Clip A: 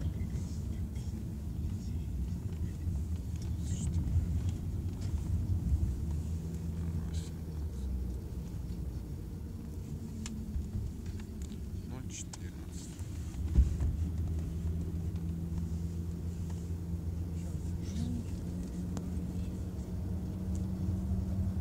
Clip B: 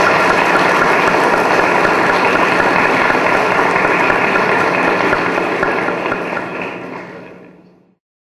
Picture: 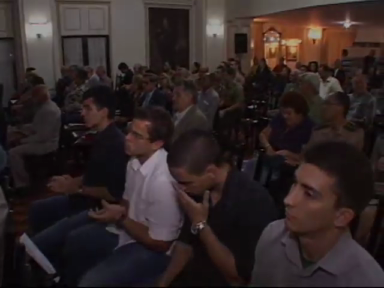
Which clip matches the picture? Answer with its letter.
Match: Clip B